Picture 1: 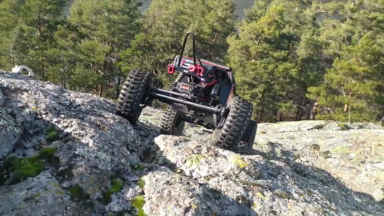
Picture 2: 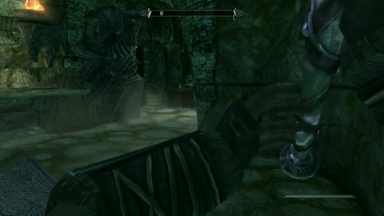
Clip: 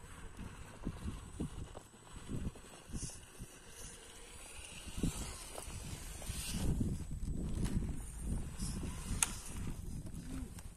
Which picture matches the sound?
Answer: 1